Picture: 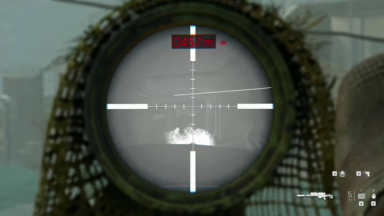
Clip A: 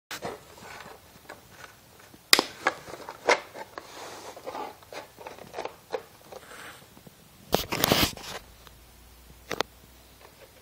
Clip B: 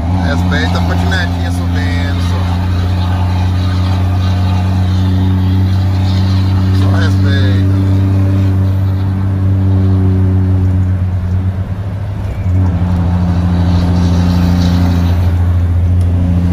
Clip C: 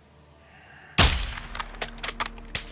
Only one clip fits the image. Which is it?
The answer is C